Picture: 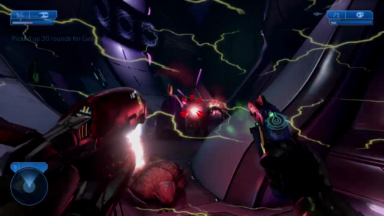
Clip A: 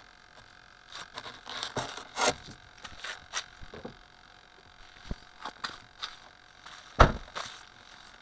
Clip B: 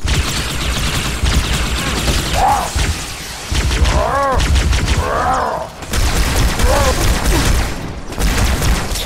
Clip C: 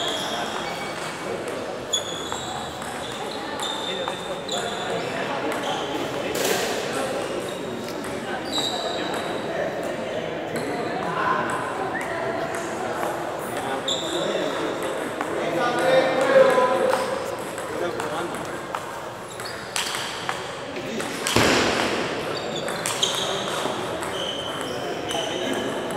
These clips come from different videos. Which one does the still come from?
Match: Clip B